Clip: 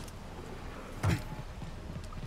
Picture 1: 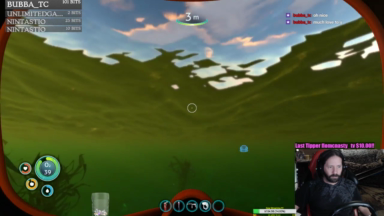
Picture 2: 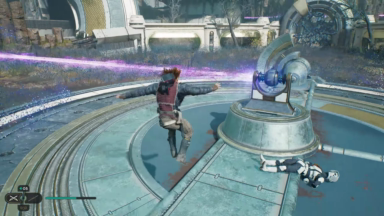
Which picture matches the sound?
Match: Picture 2